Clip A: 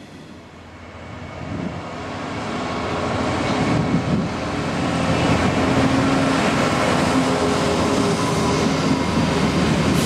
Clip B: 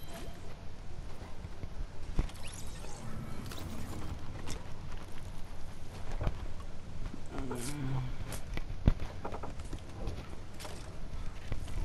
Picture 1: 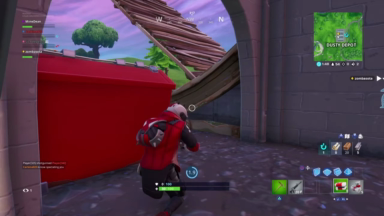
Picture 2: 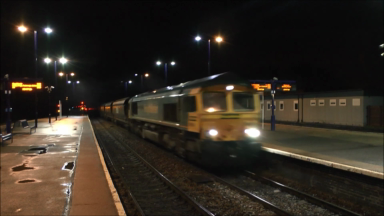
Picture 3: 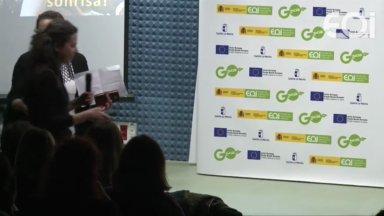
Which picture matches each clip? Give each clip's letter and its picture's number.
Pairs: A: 2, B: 1